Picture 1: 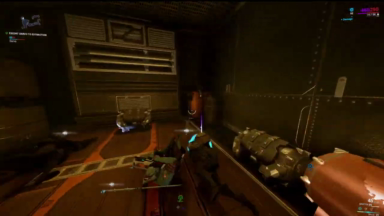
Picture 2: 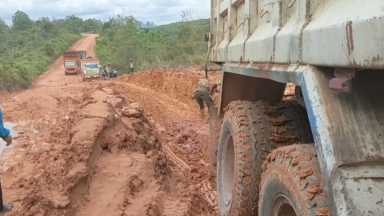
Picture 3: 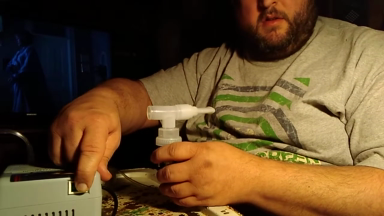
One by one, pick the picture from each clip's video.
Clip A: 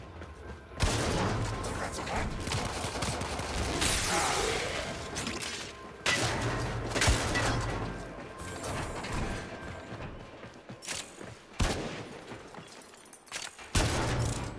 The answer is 1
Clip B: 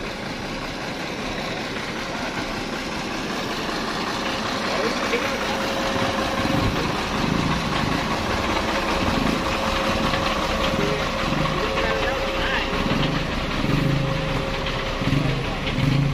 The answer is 2